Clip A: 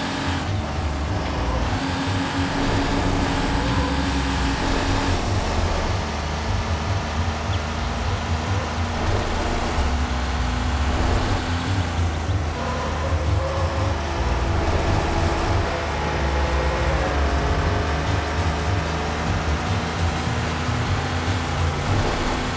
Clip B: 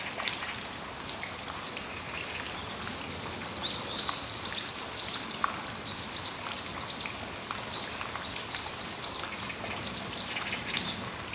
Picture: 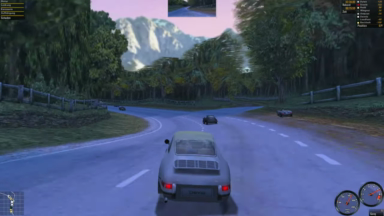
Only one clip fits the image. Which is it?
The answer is A